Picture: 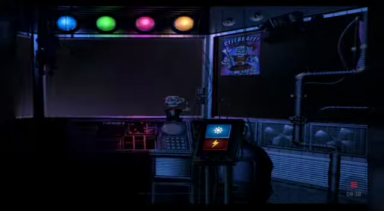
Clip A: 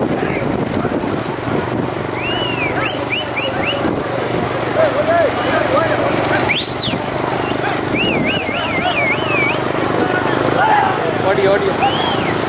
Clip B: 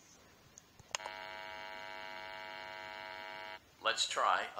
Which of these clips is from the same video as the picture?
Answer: B